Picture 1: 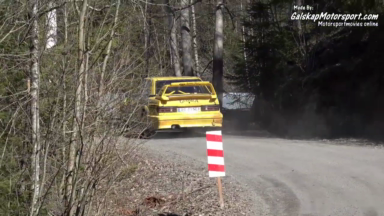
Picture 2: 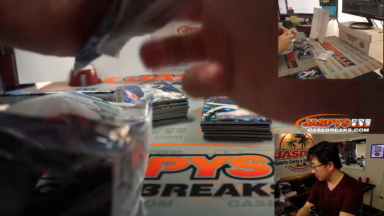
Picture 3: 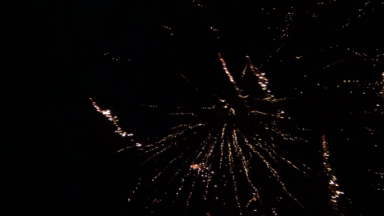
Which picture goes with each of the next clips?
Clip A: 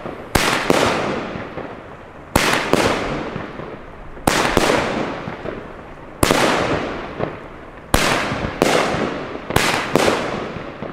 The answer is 3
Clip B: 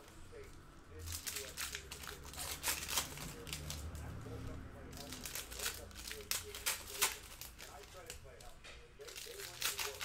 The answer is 2